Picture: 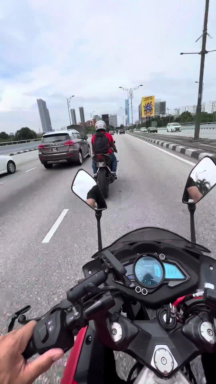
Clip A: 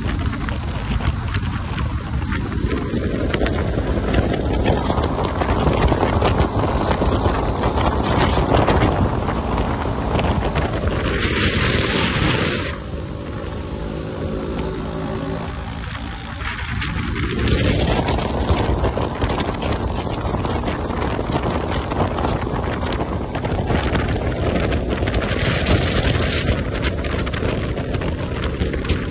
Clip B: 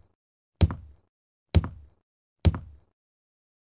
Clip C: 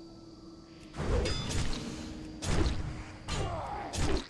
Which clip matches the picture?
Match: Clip A